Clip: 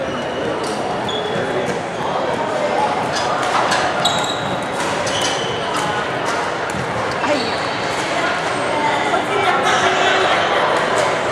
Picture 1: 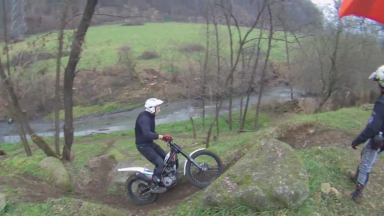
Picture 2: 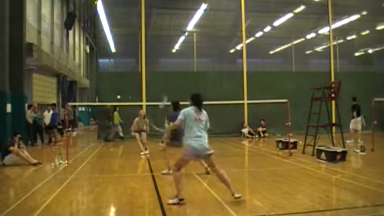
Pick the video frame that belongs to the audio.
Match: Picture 2